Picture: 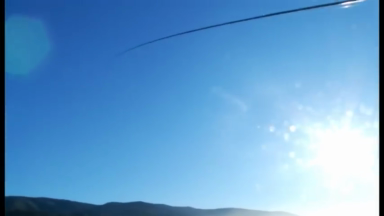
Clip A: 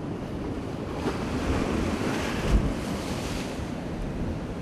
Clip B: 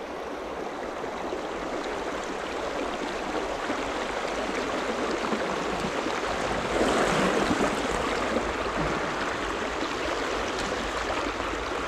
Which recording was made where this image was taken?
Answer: A